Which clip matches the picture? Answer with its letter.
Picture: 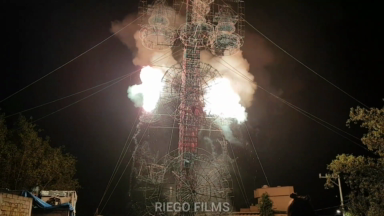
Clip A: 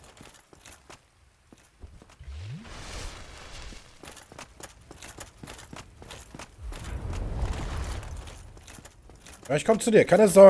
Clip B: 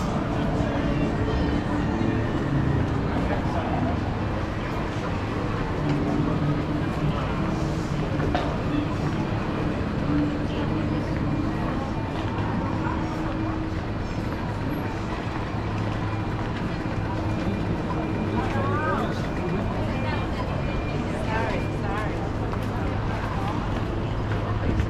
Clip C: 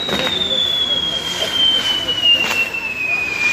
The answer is C